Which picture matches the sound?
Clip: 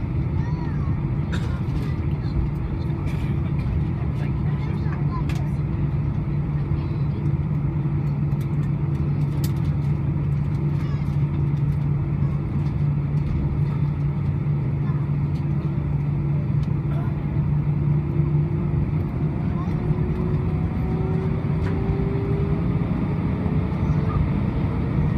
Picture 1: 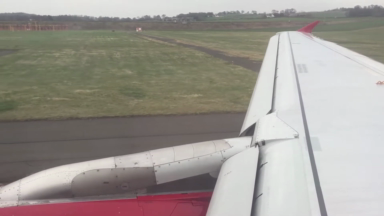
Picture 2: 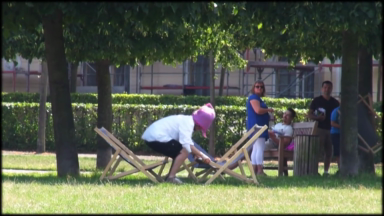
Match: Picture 1